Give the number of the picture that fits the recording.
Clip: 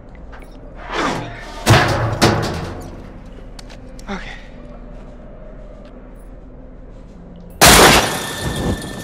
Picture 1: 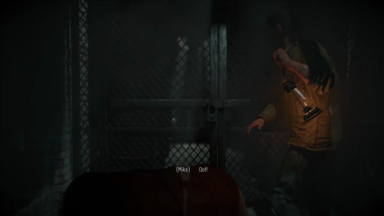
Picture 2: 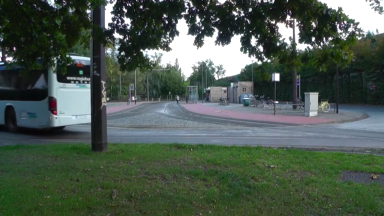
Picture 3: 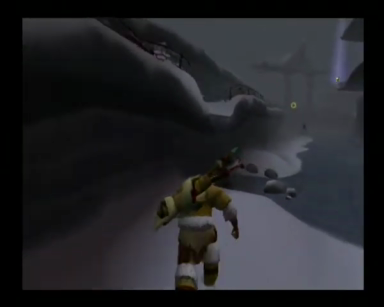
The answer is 1